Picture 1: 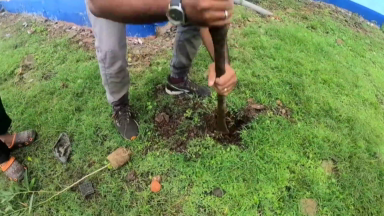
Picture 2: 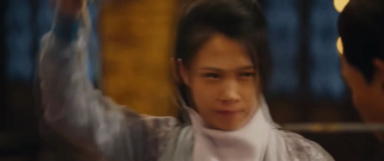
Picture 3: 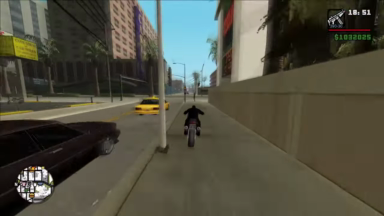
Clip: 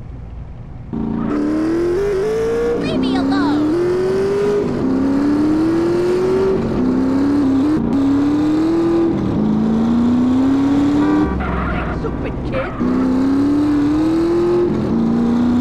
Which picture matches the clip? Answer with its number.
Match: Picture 3